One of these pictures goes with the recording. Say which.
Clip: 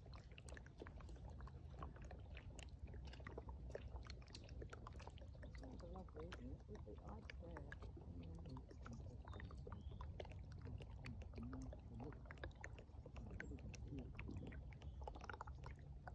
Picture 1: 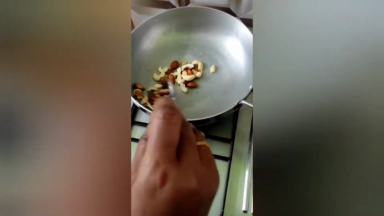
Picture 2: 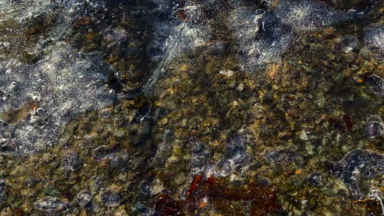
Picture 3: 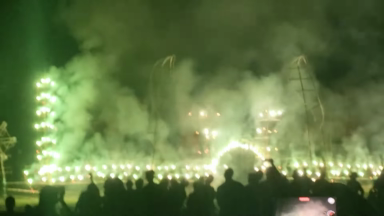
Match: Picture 2